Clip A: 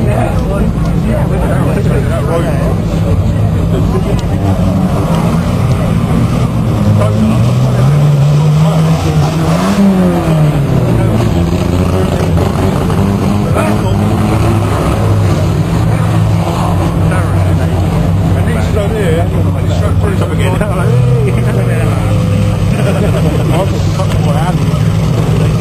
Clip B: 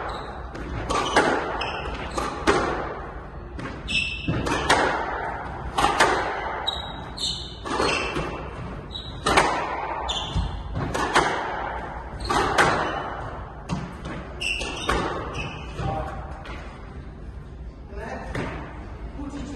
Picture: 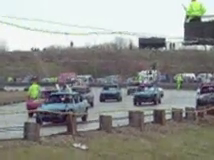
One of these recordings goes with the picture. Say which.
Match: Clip A